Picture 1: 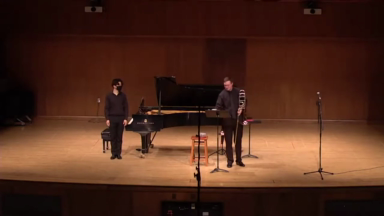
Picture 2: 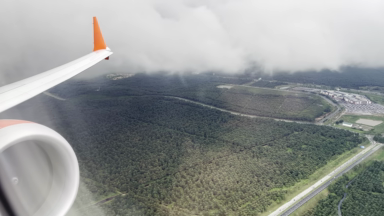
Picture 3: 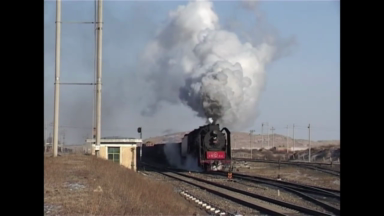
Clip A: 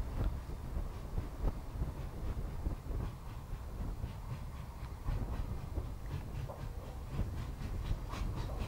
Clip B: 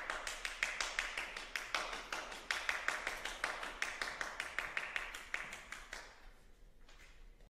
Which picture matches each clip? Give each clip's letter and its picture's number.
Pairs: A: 3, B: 1